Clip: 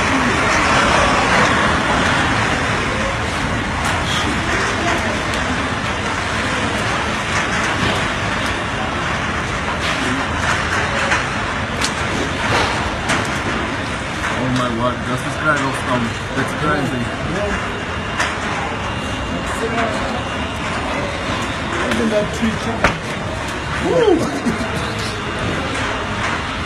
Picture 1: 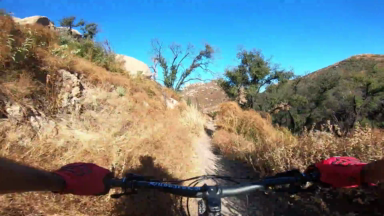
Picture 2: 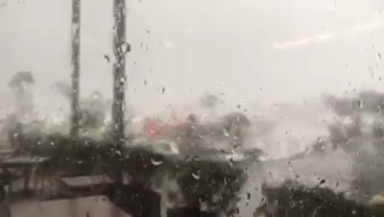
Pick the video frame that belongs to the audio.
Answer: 2